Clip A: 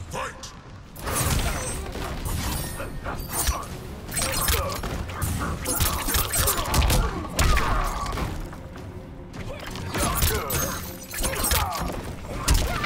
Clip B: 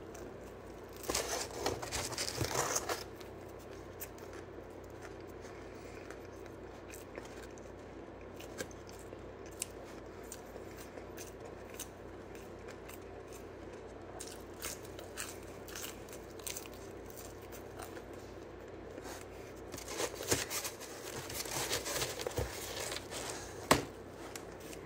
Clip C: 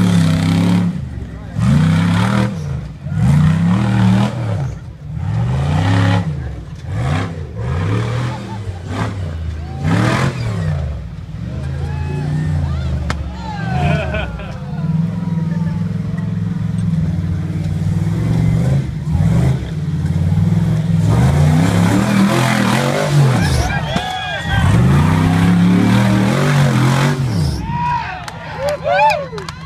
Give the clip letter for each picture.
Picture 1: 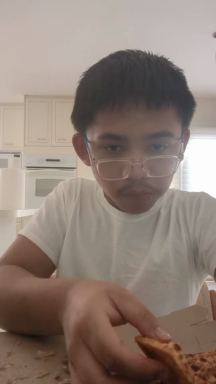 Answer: B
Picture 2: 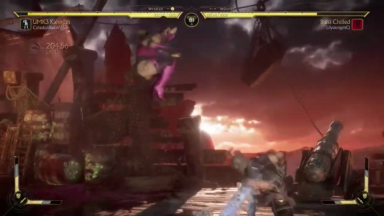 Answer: A